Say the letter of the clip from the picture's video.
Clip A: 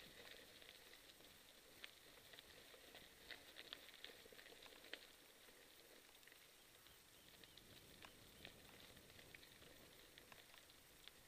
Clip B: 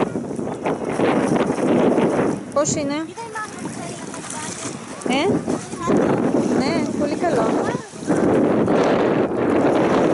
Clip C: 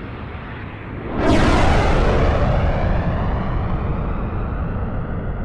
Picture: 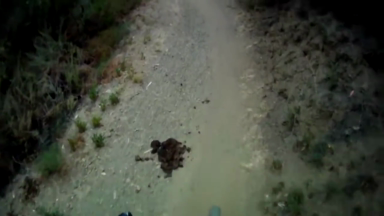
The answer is A